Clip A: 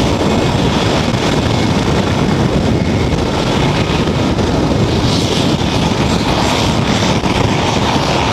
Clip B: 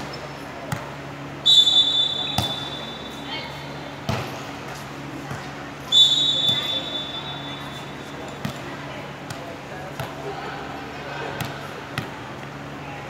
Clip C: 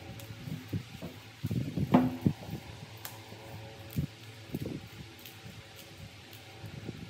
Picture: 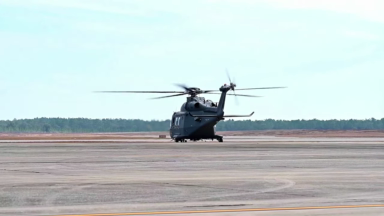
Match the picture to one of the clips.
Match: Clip A